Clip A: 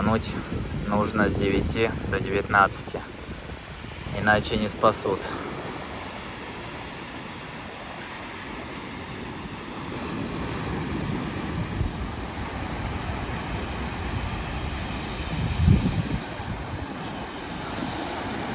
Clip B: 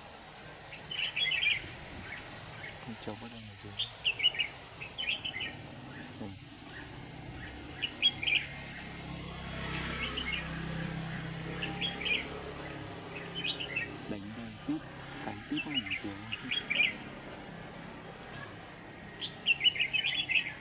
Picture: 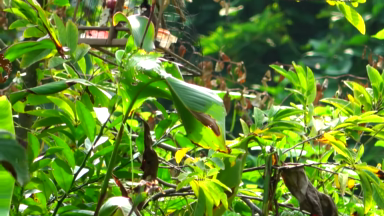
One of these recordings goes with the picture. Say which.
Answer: B